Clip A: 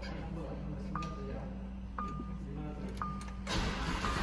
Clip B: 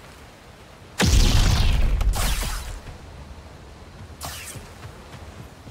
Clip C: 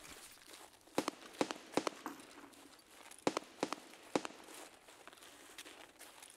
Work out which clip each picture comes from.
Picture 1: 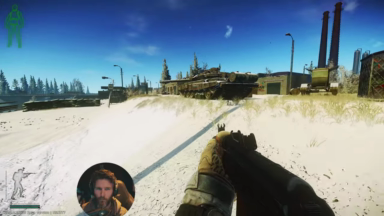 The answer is C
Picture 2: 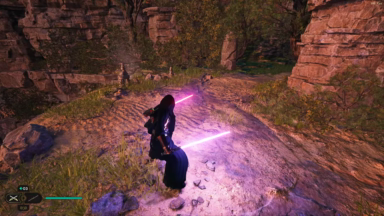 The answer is B